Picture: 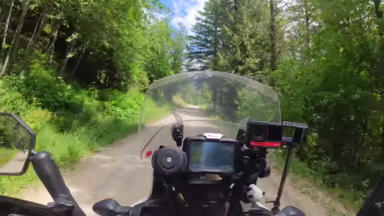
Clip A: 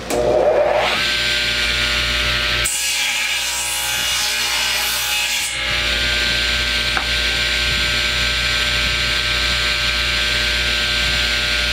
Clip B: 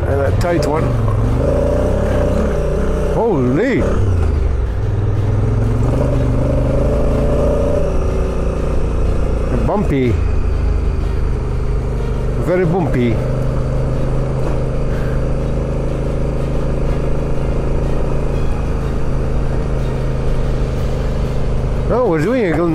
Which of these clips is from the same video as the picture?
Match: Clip B